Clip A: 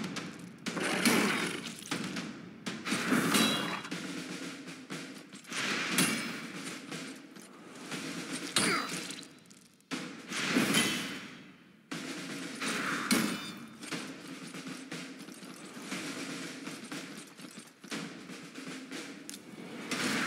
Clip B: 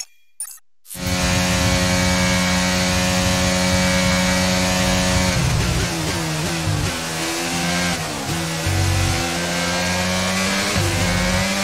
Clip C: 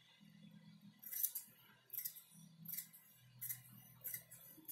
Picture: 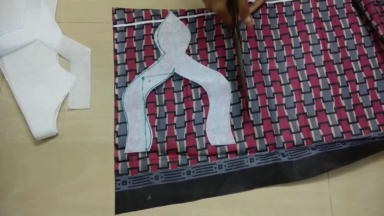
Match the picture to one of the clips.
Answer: C